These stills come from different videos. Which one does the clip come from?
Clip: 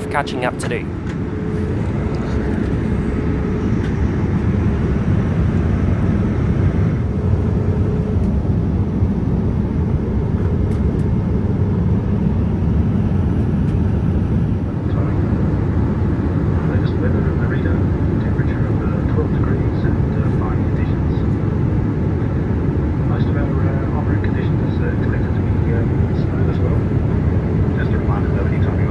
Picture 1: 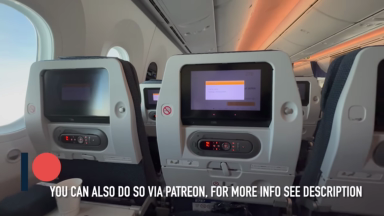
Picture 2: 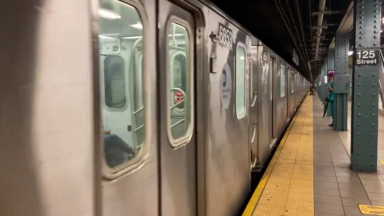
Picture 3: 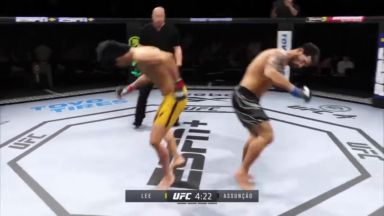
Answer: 1